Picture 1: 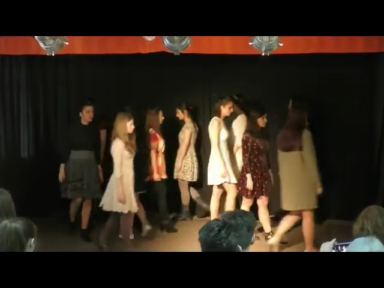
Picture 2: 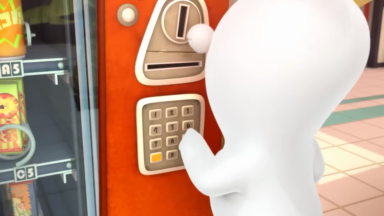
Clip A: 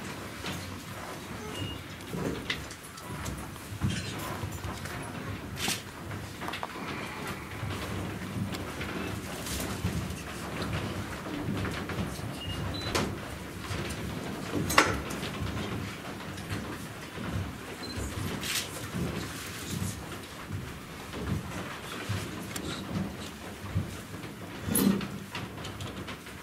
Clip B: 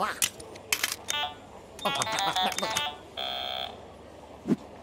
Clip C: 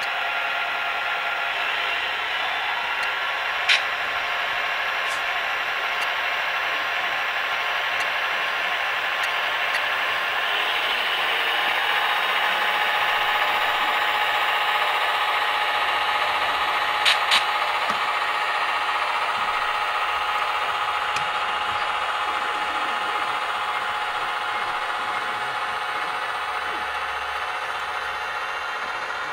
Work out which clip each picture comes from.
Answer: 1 A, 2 B